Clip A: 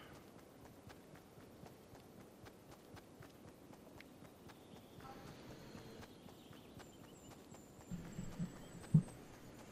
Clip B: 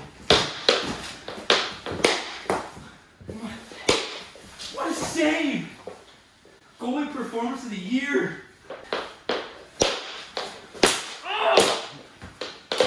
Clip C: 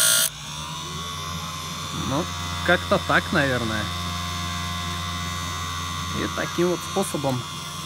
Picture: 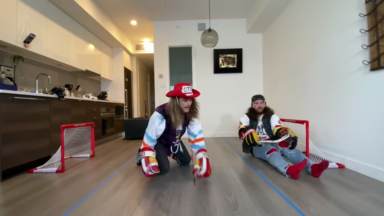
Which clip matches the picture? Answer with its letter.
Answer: B